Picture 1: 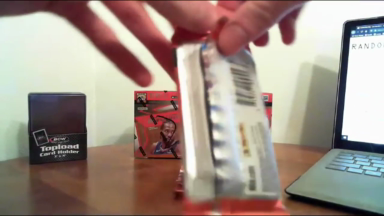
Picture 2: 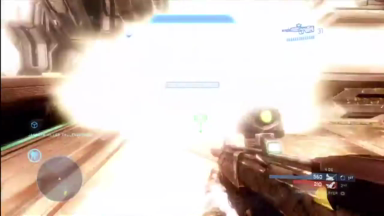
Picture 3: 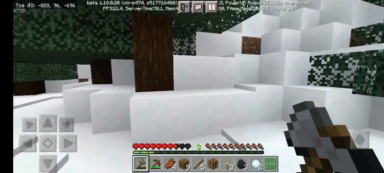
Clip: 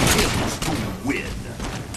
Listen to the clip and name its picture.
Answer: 2